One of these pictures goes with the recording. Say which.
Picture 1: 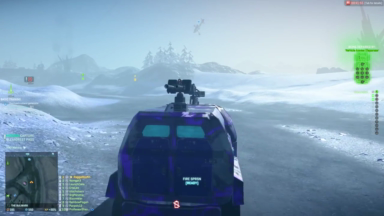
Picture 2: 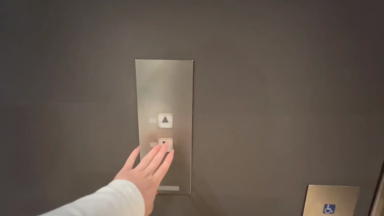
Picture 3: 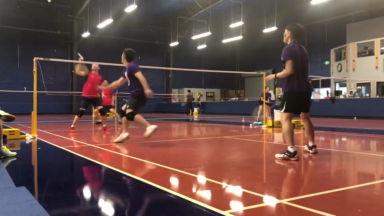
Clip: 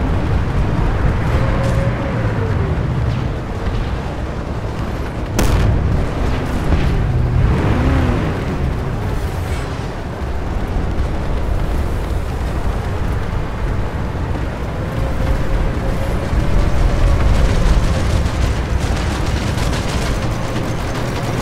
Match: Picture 1